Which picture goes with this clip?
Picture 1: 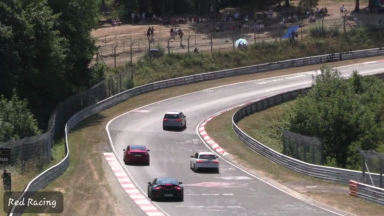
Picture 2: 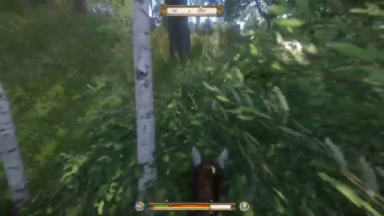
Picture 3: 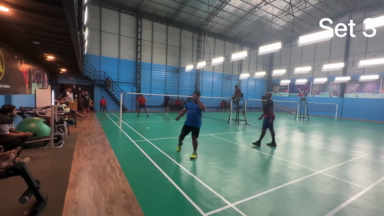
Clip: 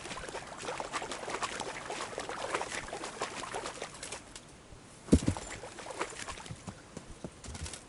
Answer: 2